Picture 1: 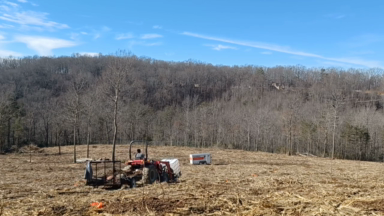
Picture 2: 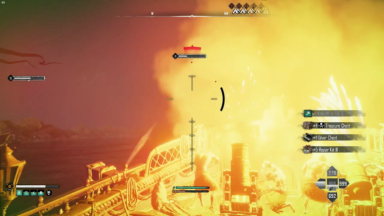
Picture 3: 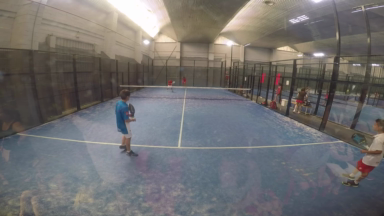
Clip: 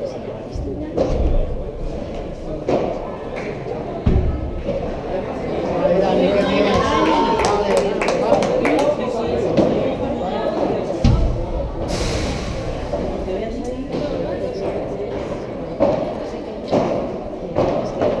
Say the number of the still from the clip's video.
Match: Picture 3